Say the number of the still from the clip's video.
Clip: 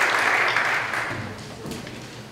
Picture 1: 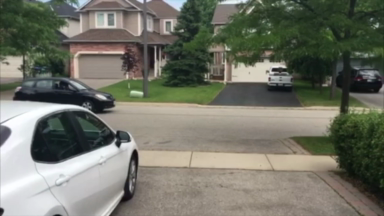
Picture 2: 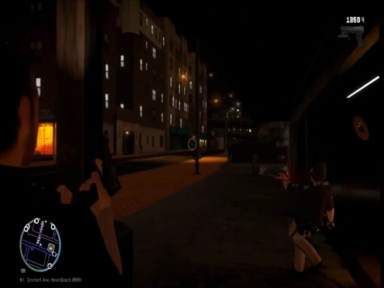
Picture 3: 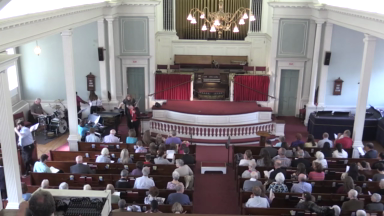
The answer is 3